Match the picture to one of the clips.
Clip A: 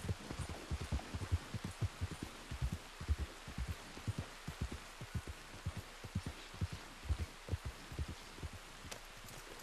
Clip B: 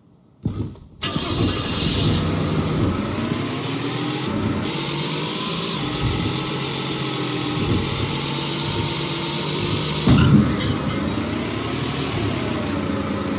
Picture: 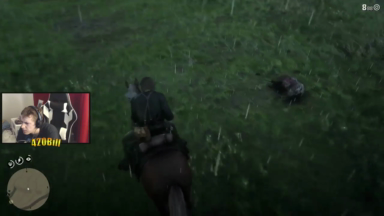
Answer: A